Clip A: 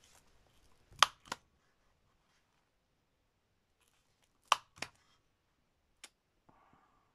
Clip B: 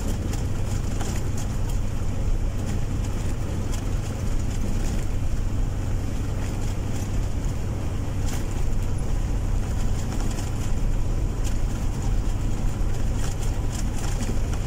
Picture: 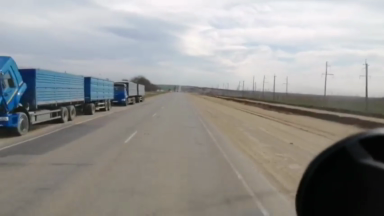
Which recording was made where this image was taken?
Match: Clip B